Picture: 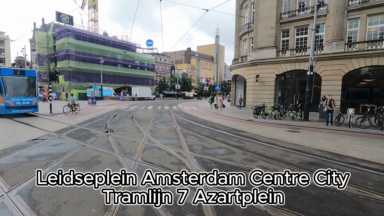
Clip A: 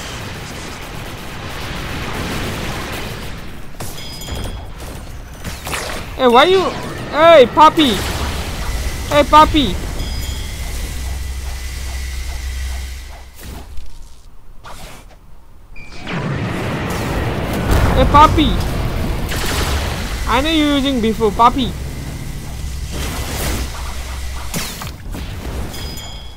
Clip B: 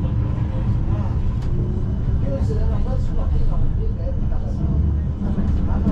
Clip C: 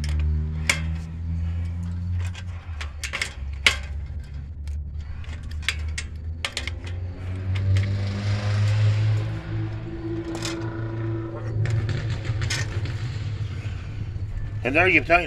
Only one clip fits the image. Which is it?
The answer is B